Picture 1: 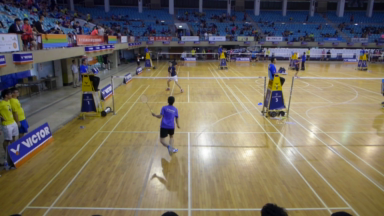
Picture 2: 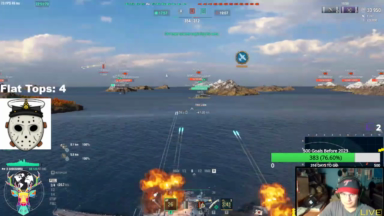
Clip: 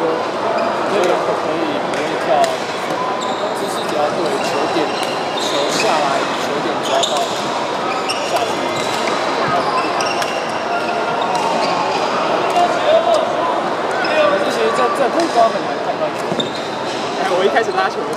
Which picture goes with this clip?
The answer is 1